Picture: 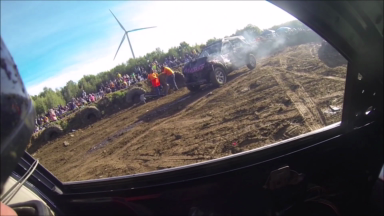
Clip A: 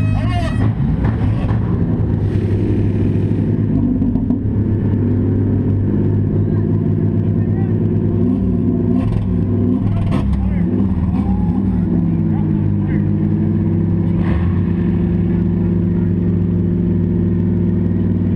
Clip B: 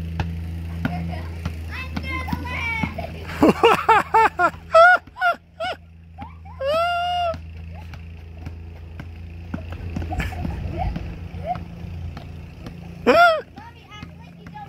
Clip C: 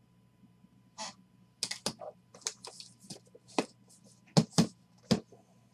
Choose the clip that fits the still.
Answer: A